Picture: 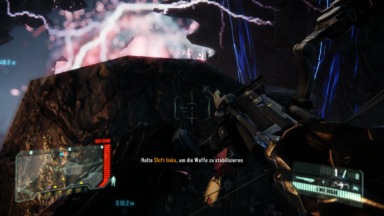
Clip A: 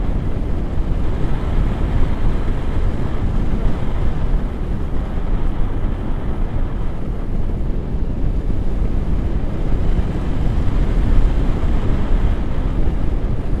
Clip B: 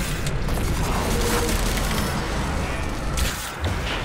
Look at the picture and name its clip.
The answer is B